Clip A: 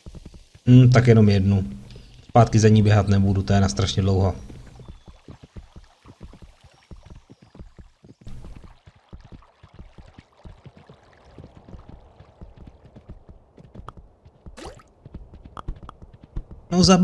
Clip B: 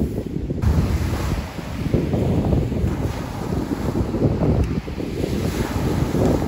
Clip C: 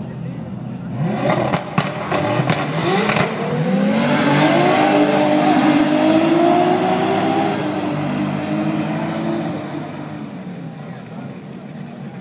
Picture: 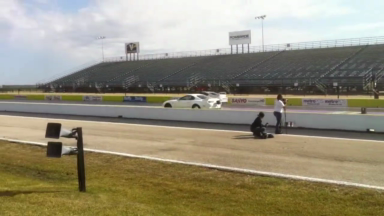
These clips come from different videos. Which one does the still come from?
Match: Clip C